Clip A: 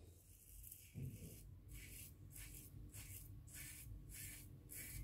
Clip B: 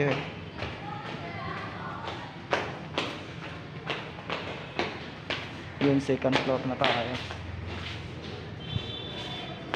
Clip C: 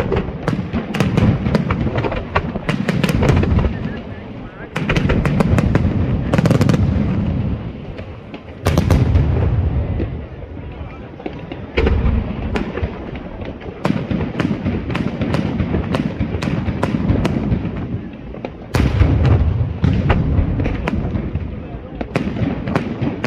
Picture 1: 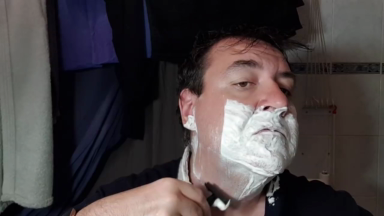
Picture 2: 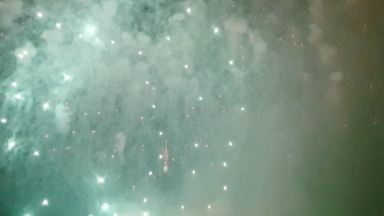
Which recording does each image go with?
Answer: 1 A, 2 C